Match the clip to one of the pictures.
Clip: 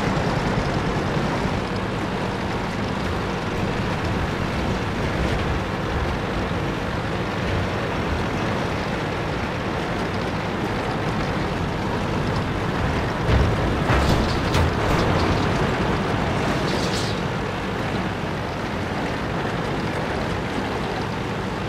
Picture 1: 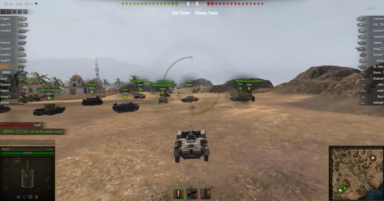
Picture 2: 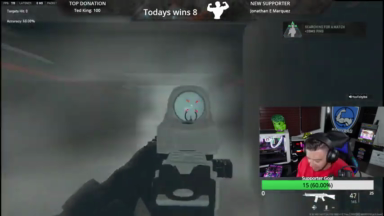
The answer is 1